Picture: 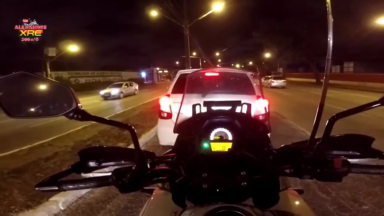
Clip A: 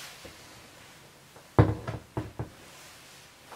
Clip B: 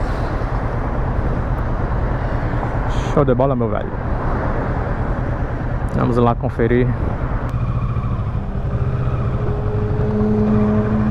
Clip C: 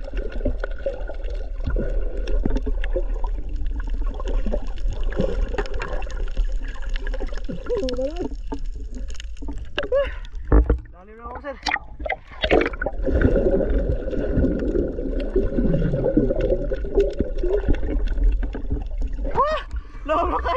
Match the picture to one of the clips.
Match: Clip B